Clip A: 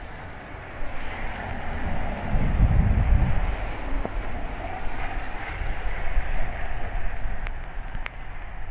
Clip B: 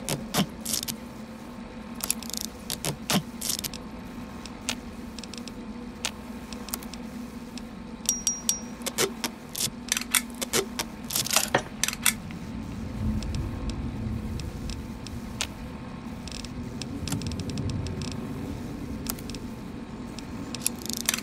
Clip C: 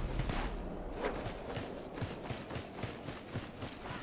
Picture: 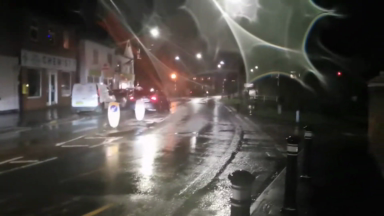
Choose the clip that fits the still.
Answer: A